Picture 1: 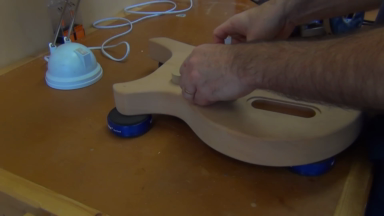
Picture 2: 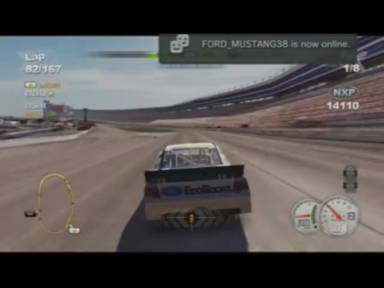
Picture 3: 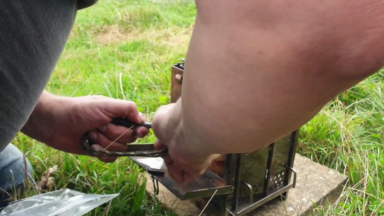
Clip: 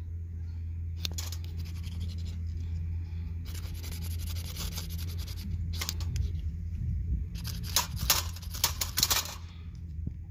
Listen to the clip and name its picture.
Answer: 3